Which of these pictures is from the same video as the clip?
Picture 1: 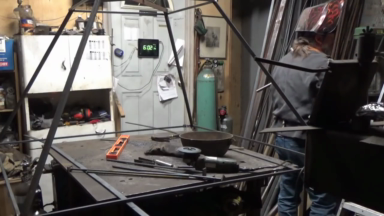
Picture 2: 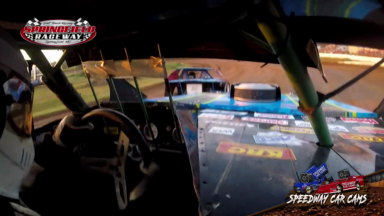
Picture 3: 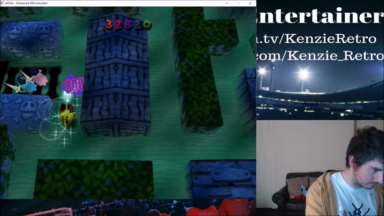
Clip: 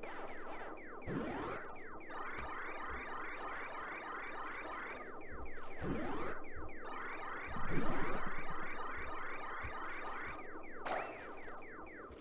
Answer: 3